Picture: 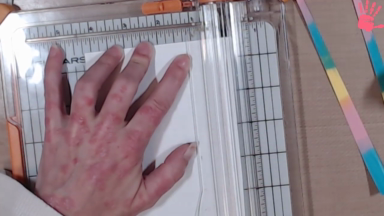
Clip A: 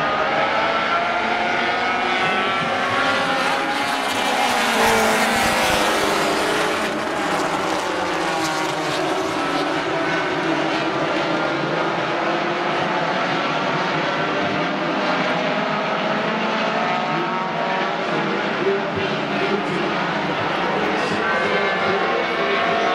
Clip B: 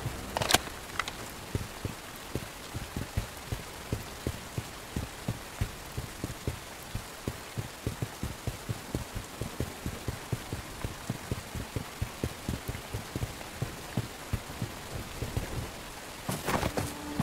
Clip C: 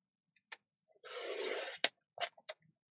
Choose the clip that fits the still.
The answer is C